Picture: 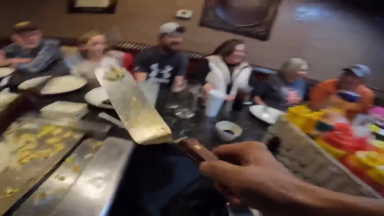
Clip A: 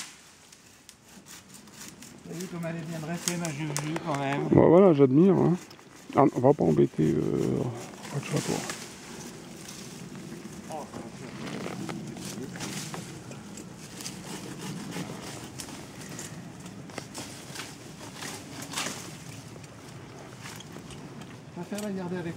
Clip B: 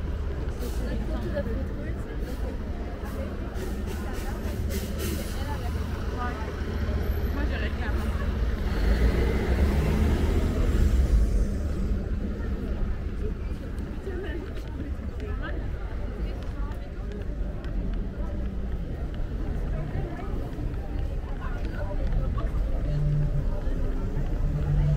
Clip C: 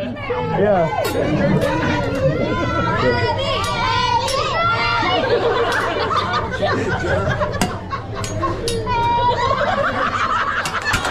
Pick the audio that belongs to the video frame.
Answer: C